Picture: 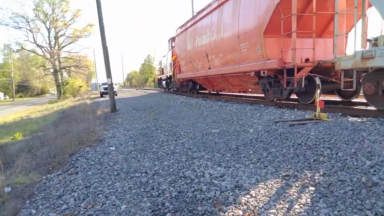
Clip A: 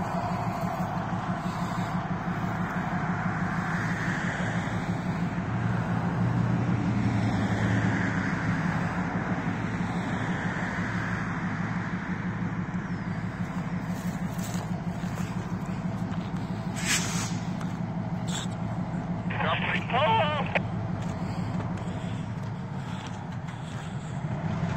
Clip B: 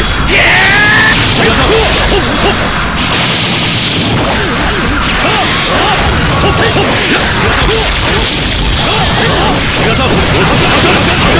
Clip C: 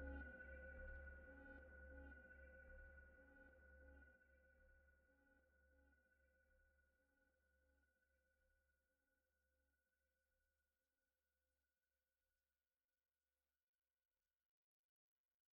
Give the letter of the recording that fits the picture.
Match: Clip A